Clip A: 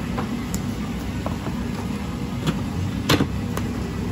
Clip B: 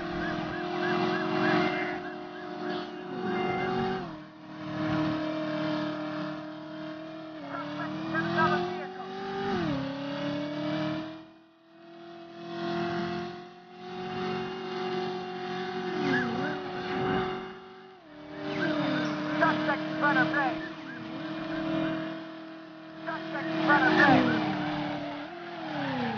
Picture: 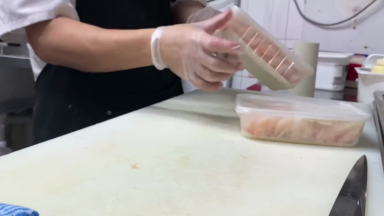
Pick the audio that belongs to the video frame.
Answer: A